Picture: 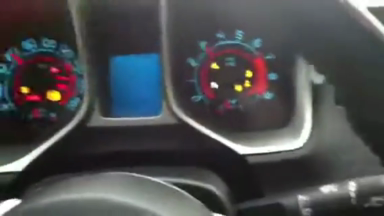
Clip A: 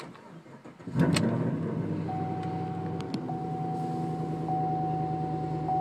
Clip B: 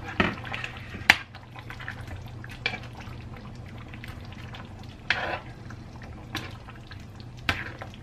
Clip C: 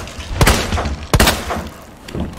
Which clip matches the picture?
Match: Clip A